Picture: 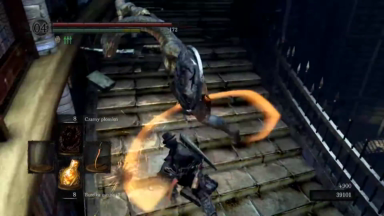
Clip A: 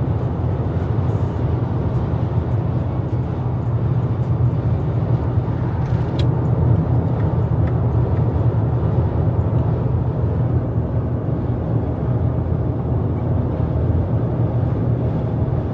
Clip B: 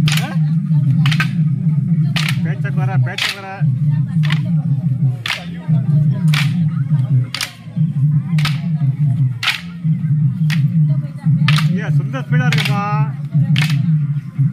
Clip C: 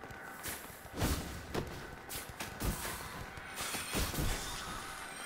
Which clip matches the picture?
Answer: C